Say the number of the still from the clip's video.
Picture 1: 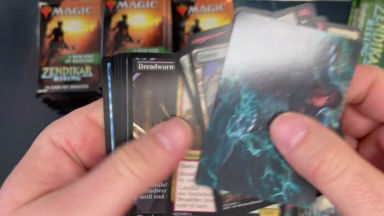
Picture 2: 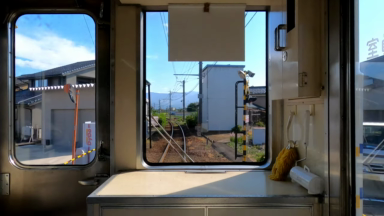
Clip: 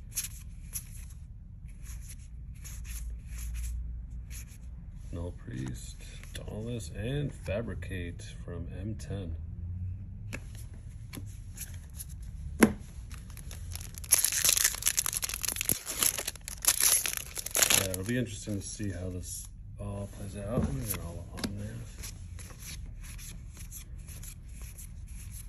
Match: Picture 1